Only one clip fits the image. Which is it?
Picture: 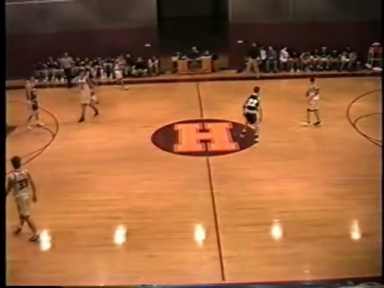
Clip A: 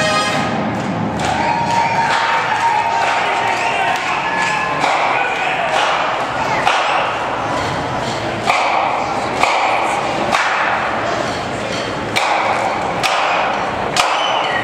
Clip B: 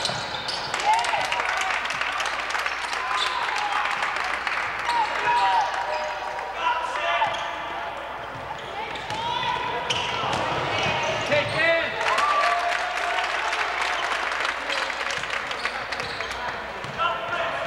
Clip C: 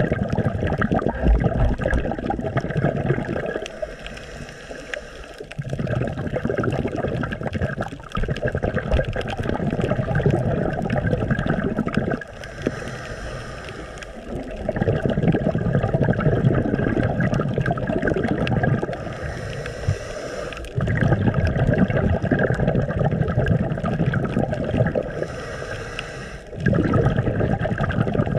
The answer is B